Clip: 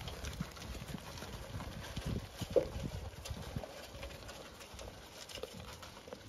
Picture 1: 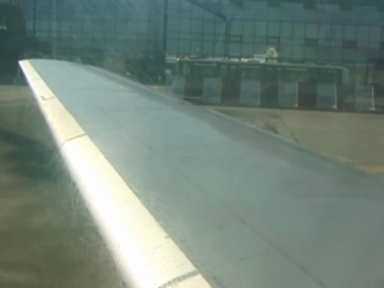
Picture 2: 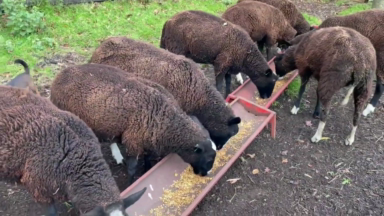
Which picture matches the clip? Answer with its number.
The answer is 2